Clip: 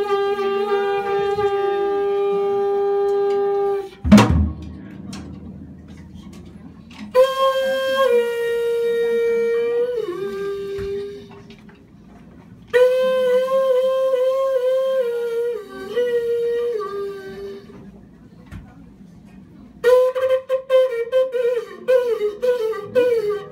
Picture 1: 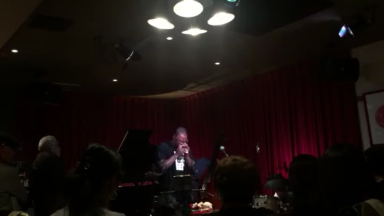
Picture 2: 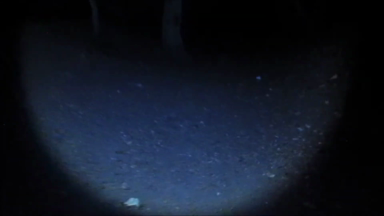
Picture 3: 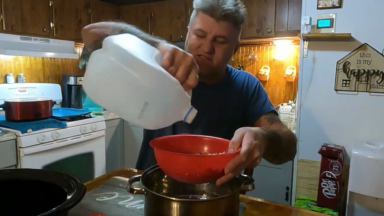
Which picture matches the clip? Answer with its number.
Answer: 1